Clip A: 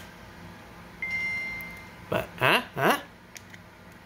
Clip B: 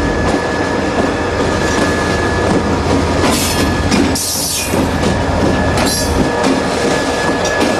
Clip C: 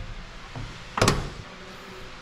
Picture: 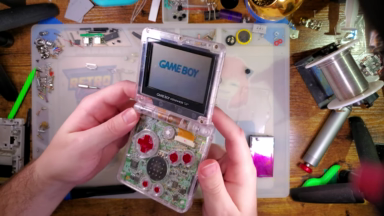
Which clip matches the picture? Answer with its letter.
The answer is A